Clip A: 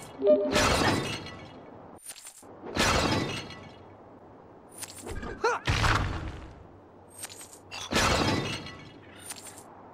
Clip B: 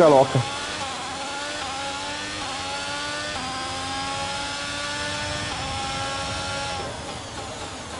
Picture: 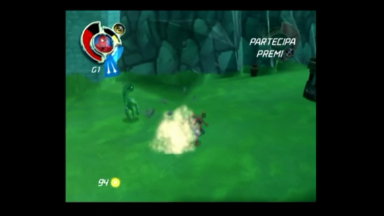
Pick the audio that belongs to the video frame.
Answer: A